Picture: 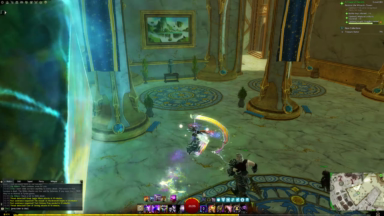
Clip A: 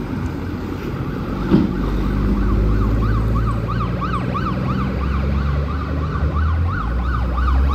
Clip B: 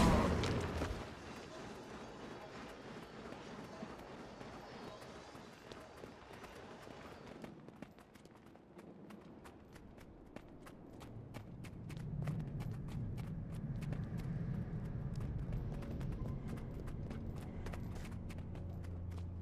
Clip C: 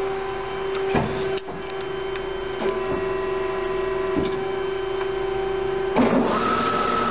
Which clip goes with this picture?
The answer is B